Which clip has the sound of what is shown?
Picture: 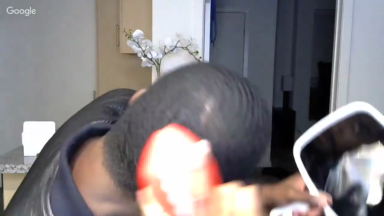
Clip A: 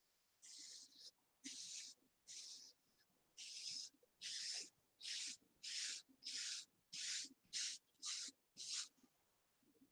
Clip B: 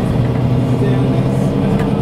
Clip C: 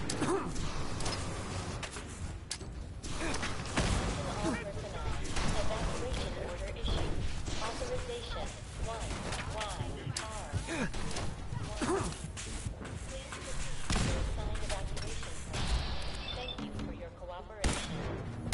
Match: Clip A